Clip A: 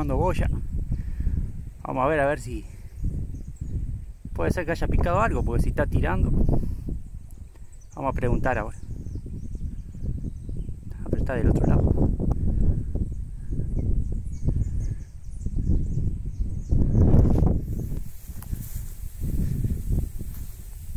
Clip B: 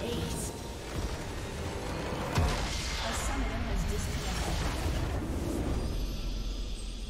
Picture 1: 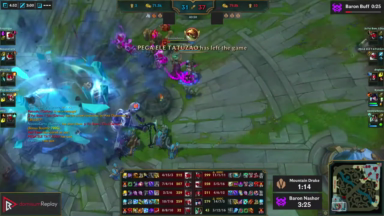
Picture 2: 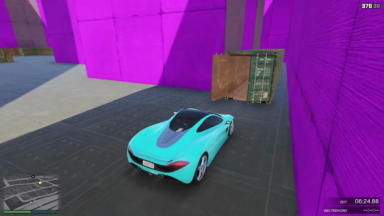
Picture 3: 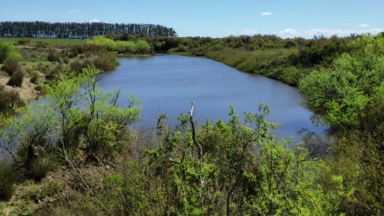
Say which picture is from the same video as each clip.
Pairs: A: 3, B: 1